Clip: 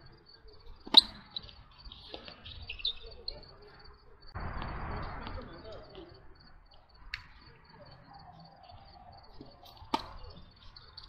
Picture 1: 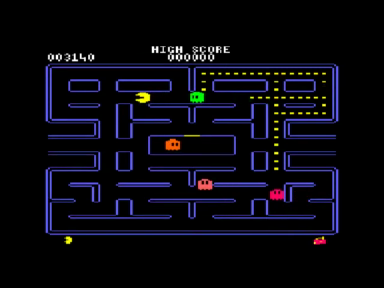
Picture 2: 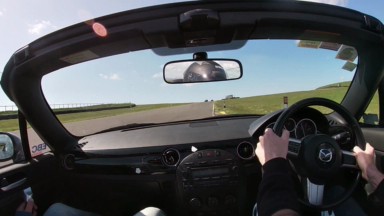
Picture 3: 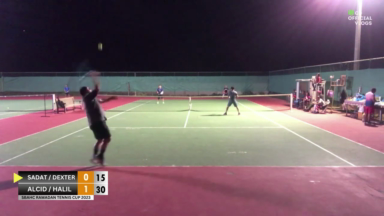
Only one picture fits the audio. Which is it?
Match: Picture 3